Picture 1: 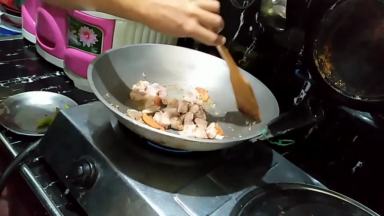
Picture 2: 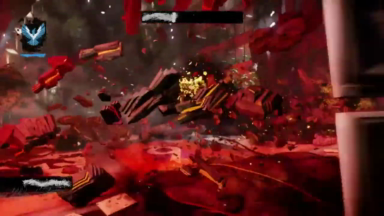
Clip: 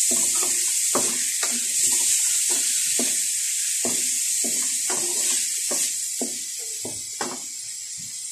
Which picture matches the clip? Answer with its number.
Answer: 1